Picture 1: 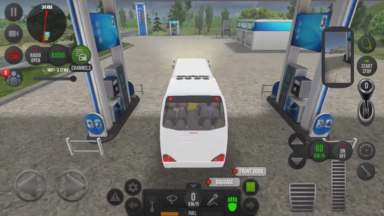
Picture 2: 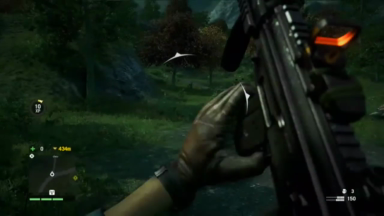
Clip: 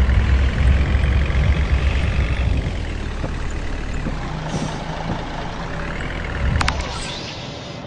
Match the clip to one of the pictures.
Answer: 1